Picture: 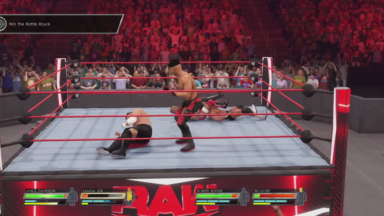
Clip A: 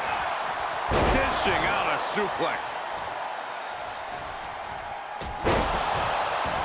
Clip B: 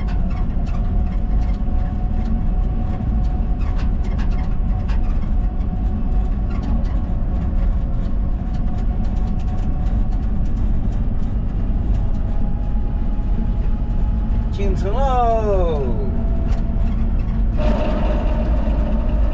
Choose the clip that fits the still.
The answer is A